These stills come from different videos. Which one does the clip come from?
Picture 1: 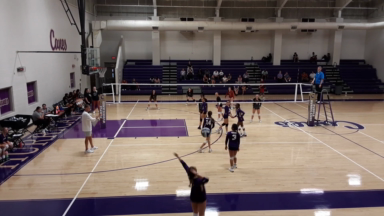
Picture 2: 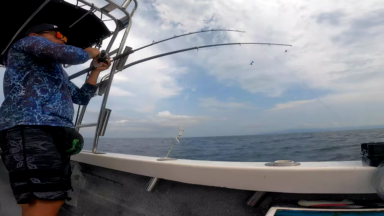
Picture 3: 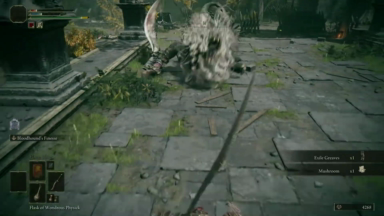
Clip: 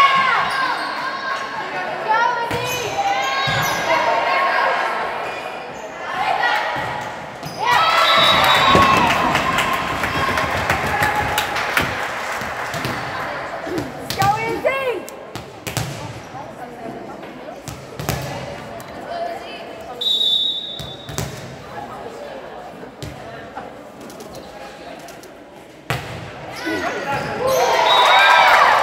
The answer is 1